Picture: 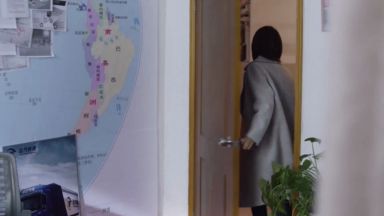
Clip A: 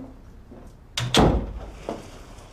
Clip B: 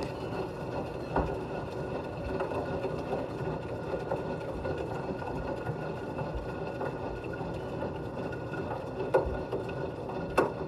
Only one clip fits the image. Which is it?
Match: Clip A